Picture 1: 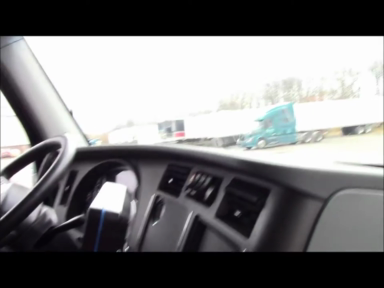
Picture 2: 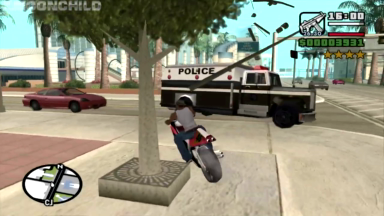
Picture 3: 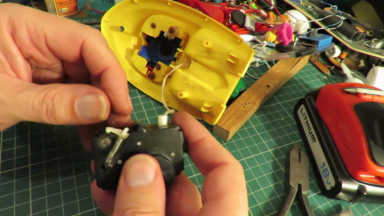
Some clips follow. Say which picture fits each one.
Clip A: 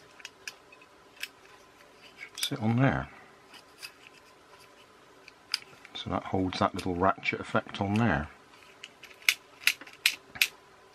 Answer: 3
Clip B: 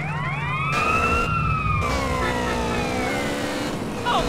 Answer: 2